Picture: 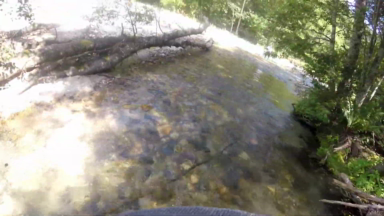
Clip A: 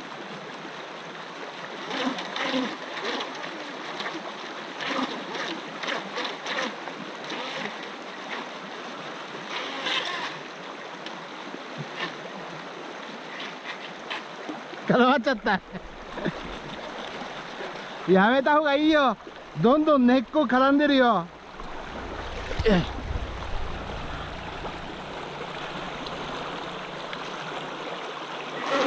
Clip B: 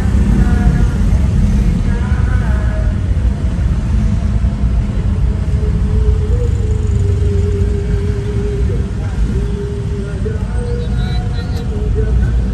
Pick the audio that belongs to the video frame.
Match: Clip A